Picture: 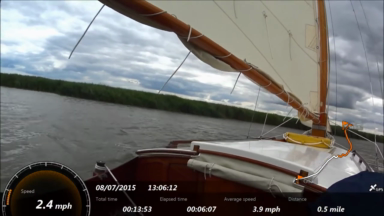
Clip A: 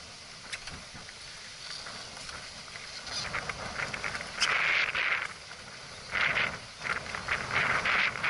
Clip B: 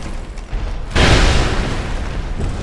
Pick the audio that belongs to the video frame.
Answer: A